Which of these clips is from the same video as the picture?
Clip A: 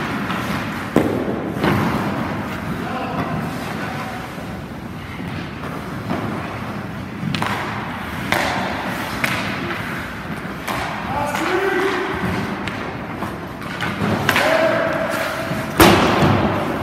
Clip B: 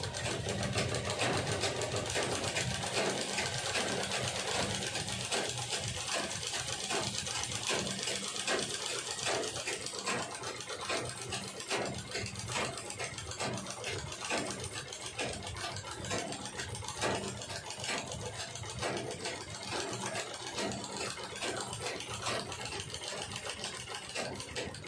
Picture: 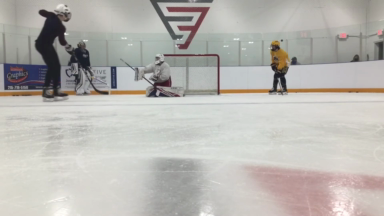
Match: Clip A